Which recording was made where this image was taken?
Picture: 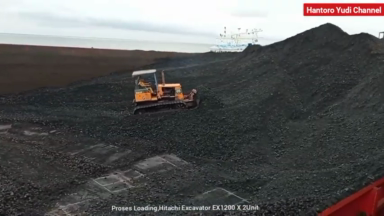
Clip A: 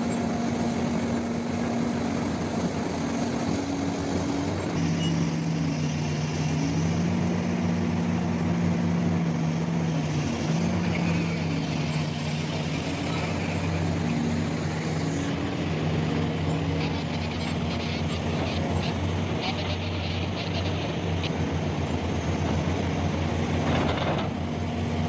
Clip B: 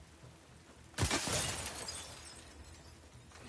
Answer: A